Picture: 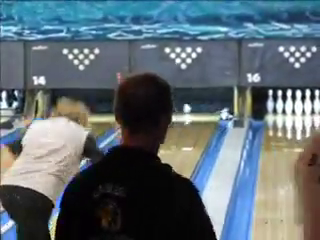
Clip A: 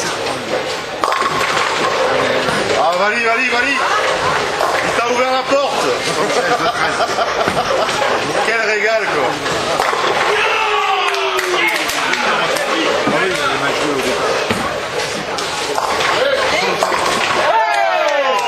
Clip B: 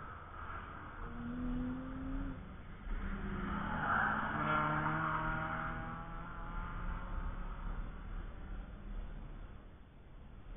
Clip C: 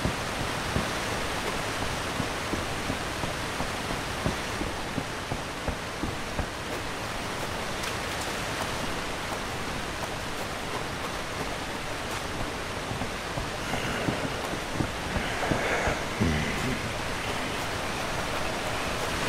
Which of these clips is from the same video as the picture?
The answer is A